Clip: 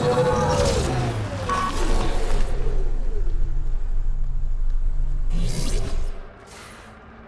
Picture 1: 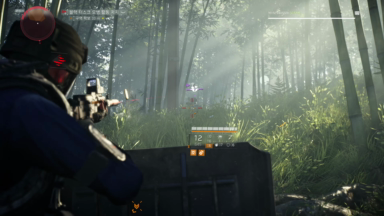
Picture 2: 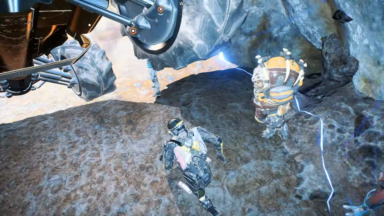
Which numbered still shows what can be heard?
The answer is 2